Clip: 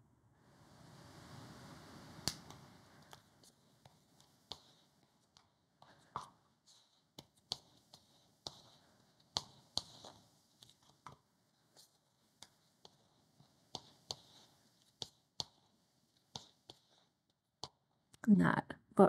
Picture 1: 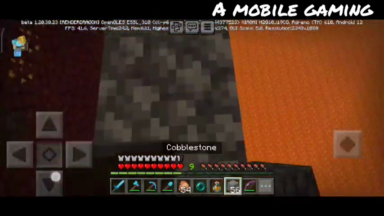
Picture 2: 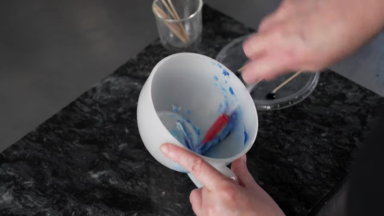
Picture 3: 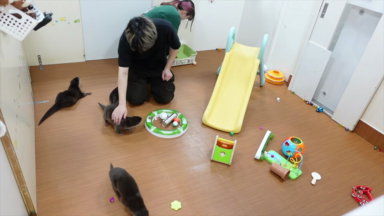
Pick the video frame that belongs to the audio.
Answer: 2